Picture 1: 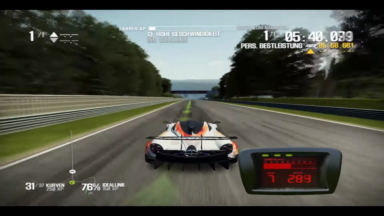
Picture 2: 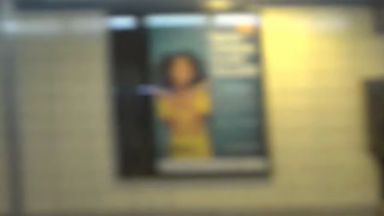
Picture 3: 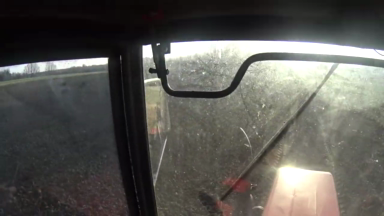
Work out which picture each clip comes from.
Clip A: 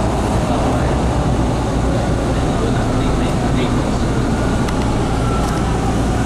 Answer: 2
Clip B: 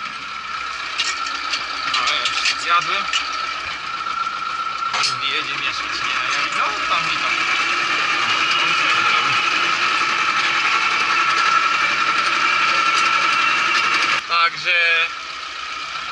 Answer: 3